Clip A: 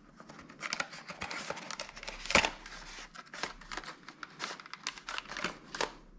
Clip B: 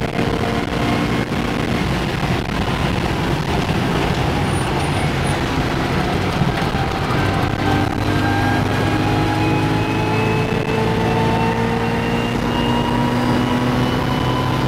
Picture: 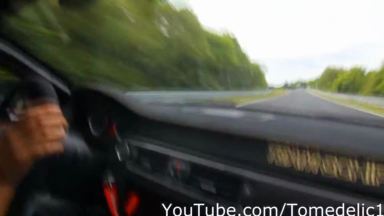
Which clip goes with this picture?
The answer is B